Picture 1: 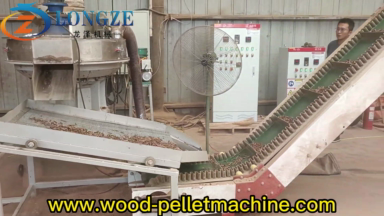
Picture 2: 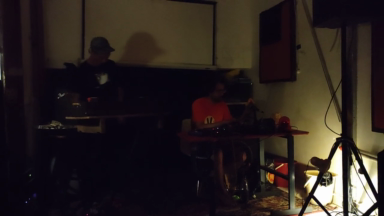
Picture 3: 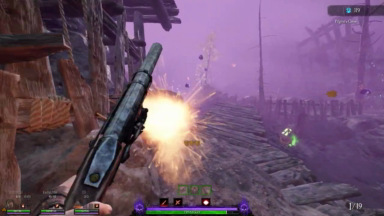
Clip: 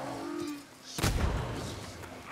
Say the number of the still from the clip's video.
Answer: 3